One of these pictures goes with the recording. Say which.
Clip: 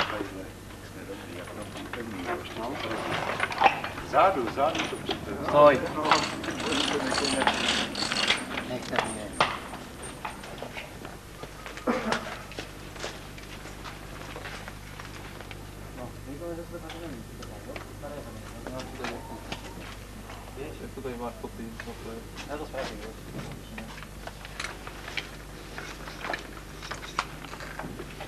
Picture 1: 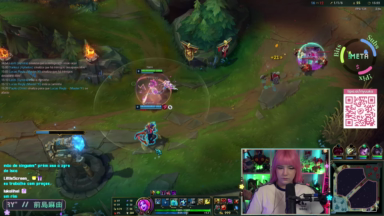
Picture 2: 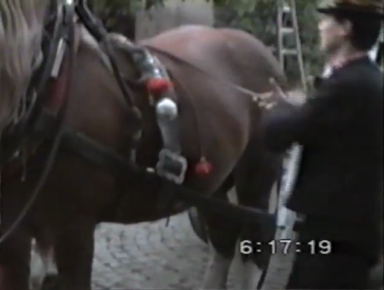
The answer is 2